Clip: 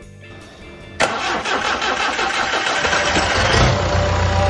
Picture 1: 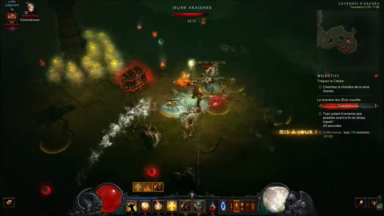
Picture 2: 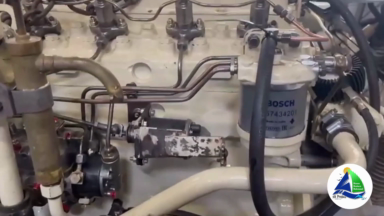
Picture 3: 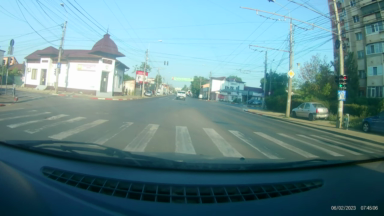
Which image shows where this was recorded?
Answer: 2